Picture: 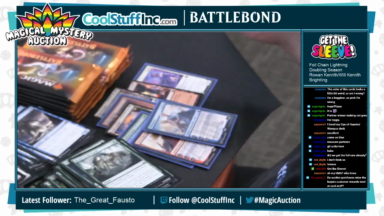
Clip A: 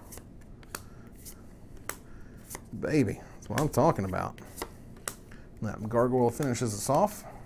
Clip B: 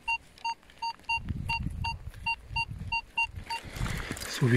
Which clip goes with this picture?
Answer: A